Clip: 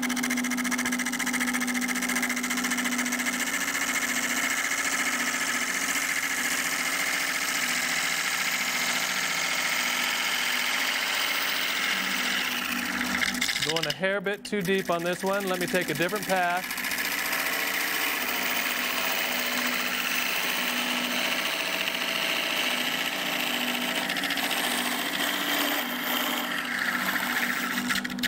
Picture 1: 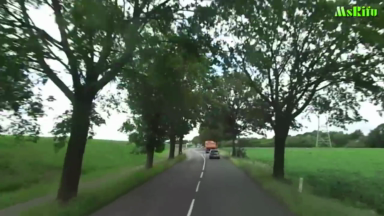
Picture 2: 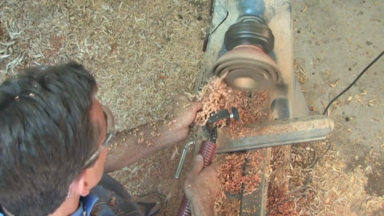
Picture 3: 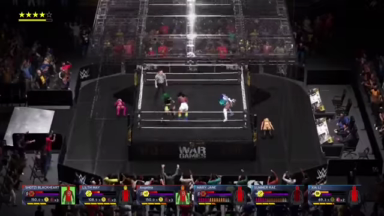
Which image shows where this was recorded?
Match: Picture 2